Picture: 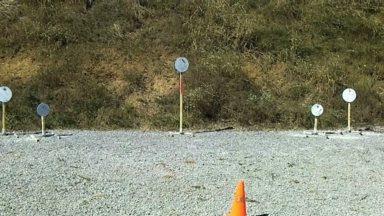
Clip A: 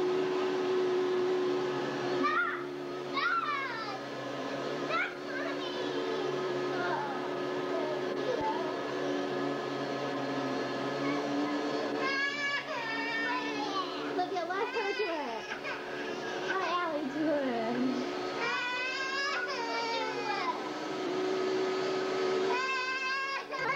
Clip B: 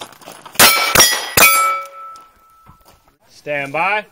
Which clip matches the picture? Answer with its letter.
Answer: B